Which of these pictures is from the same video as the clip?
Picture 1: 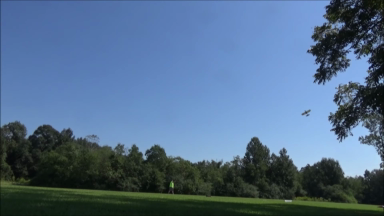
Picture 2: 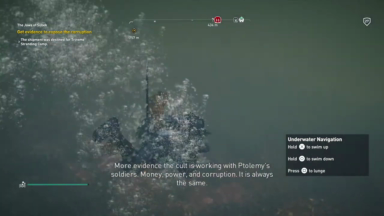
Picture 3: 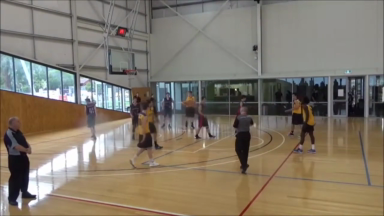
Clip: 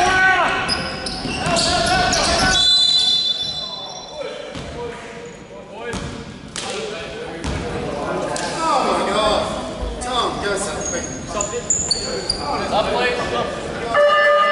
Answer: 3